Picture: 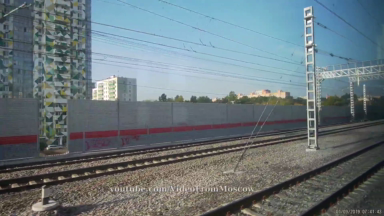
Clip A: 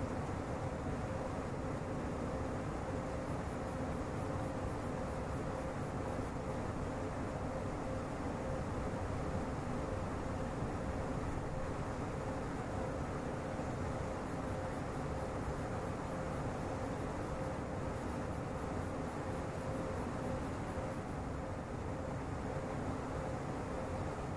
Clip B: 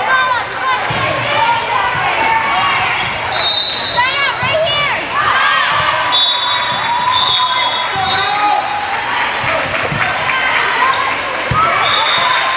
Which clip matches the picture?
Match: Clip A